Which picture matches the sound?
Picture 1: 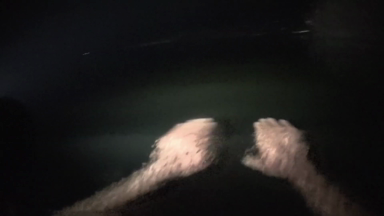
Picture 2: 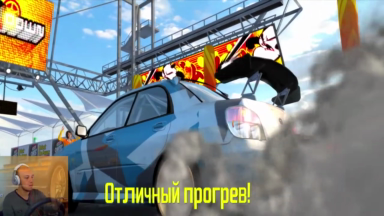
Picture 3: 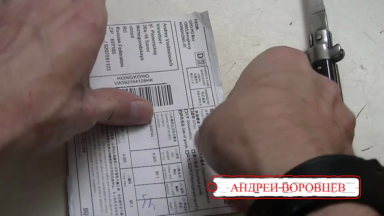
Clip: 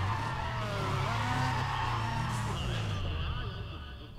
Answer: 2